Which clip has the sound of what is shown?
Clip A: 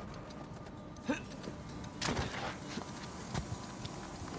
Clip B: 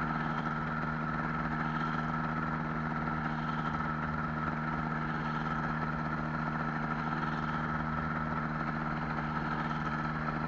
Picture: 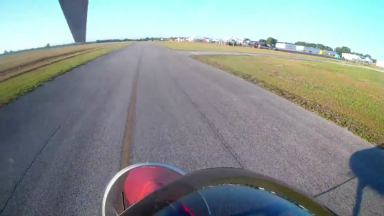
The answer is B